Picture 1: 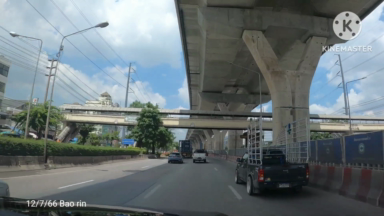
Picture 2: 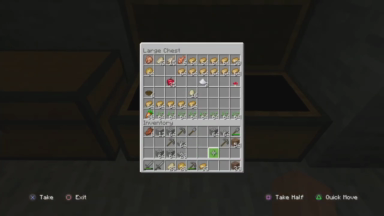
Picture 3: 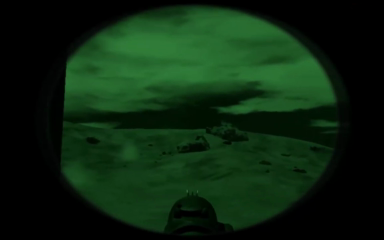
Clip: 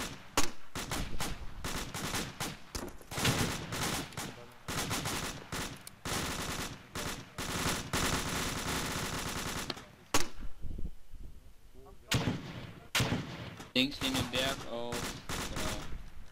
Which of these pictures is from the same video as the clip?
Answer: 3